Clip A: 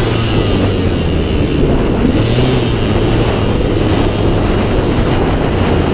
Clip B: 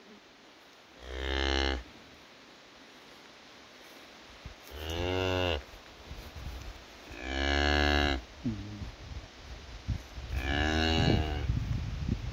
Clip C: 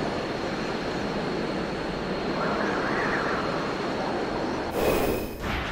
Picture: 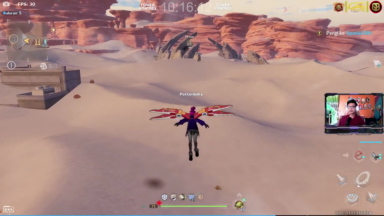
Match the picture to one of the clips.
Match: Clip C